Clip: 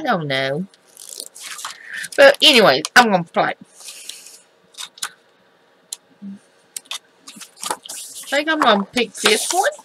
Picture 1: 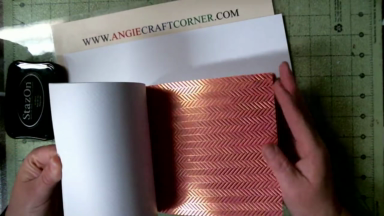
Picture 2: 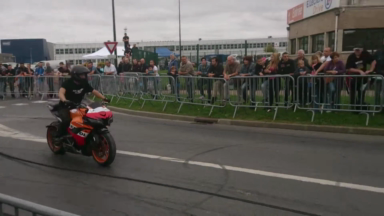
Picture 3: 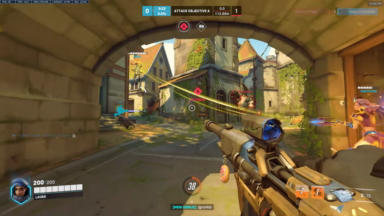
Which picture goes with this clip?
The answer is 1